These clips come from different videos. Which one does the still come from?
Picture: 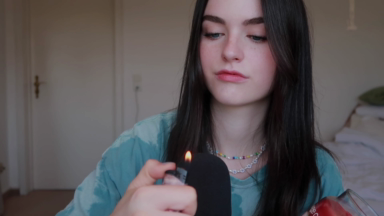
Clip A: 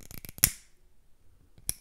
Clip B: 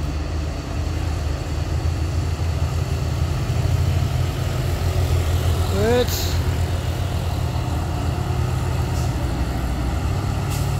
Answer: A